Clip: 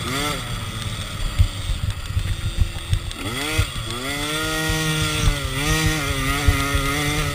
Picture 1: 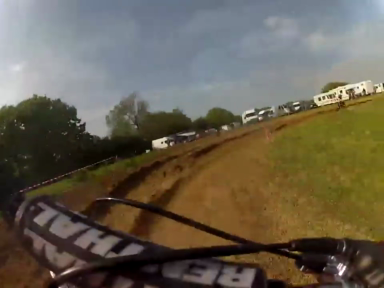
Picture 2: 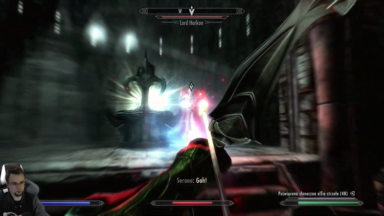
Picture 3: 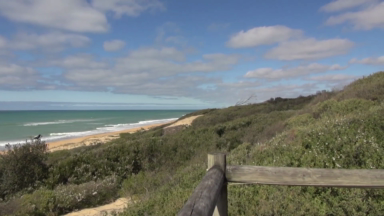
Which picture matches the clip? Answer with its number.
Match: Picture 1